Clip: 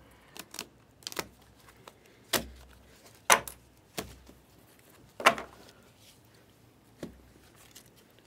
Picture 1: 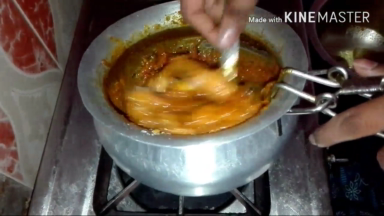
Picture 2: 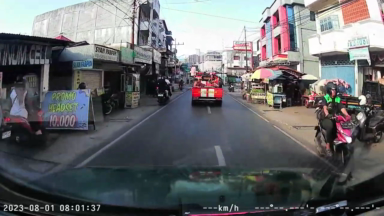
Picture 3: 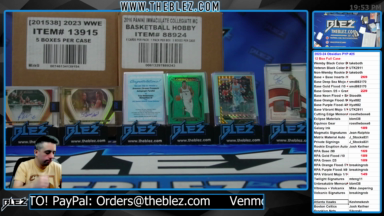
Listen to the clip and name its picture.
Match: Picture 3